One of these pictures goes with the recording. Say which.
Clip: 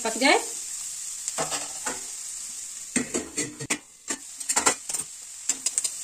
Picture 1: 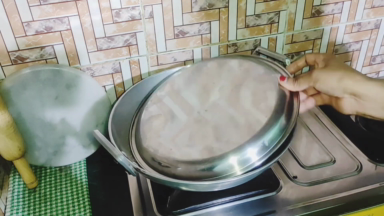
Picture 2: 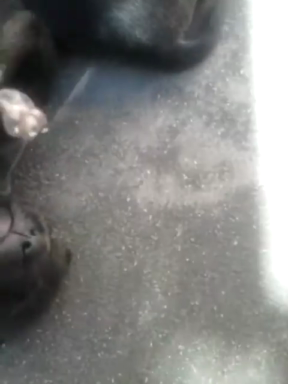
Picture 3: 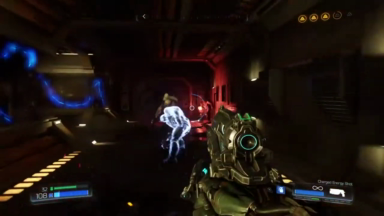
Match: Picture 1